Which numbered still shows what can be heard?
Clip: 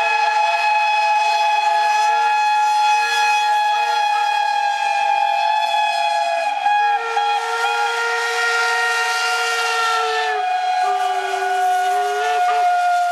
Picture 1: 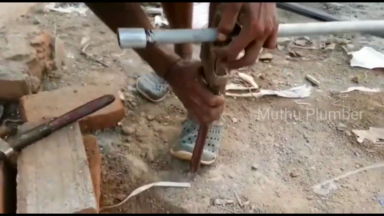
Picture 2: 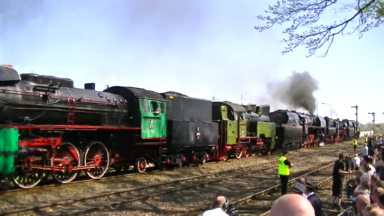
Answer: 2